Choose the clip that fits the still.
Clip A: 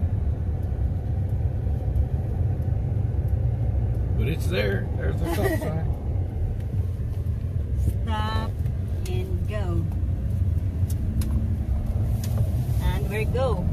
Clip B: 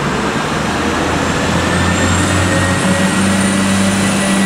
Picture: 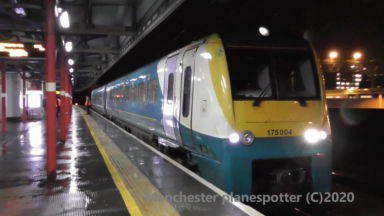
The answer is B